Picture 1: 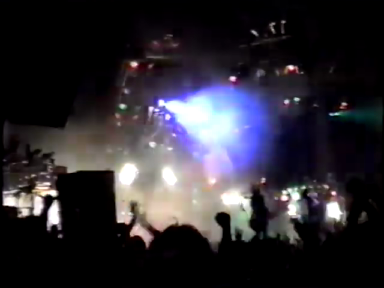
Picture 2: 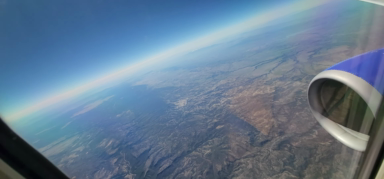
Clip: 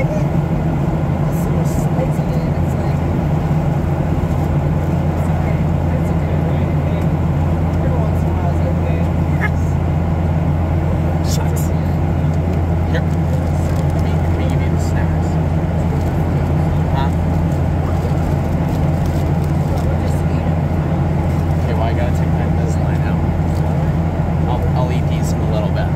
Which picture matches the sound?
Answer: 2